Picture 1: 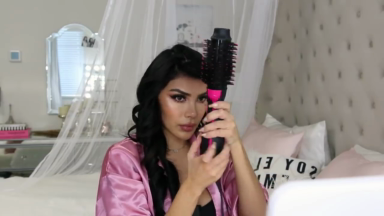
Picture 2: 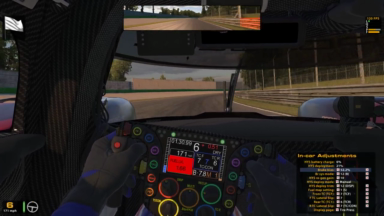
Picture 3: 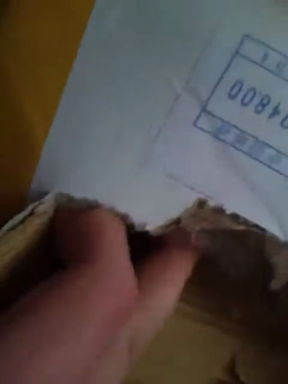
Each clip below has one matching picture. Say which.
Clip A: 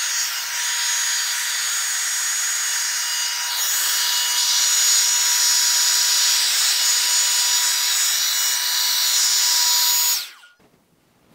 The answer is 1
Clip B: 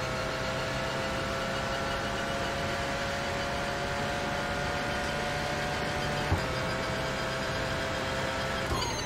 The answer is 2